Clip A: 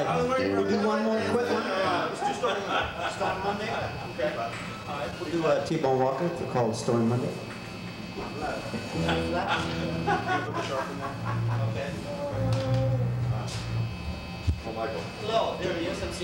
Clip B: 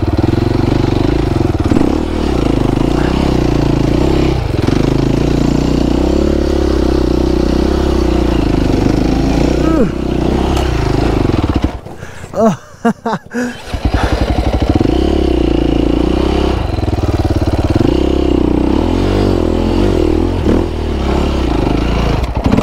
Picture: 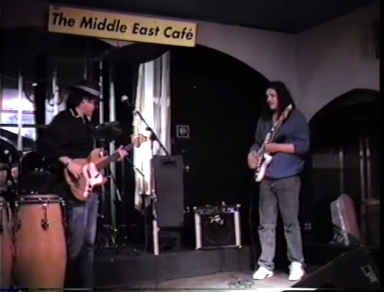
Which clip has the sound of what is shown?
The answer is A